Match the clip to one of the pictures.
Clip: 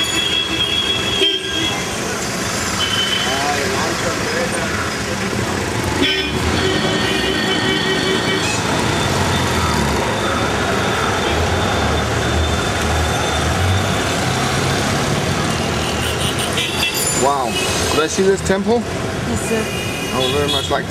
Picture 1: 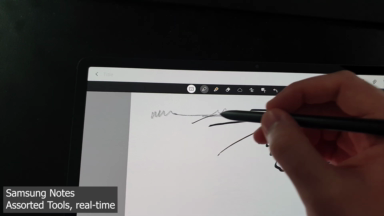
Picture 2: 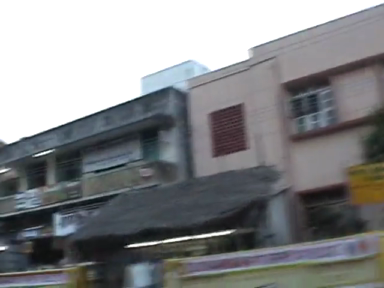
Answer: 2